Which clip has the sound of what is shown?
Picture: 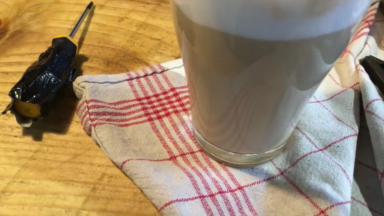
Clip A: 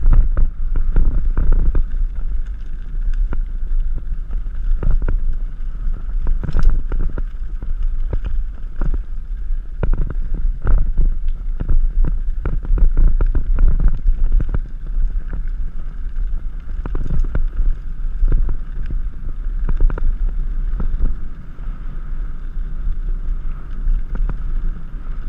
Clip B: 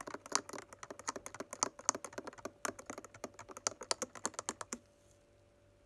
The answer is B